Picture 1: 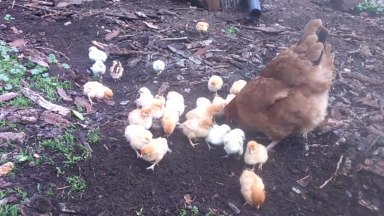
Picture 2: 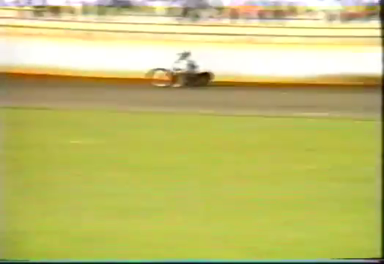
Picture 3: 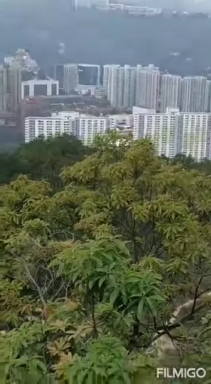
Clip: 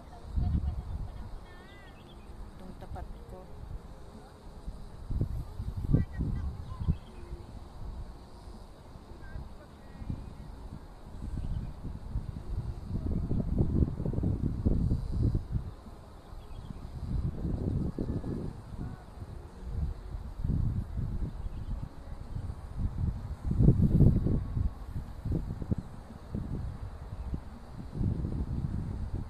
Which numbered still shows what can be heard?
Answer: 3